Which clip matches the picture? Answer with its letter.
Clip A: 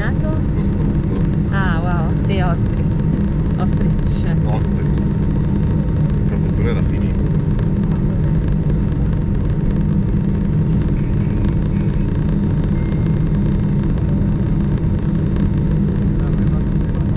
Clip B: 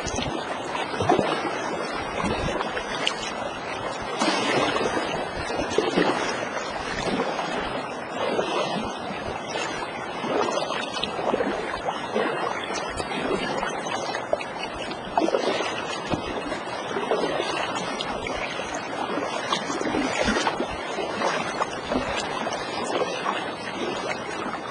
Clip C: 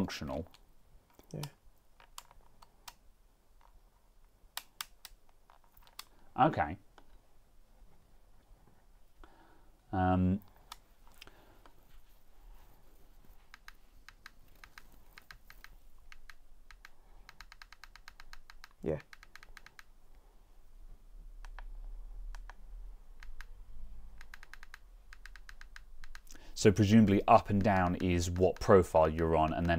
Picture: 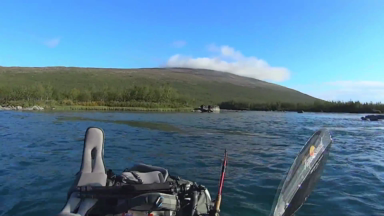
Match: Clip B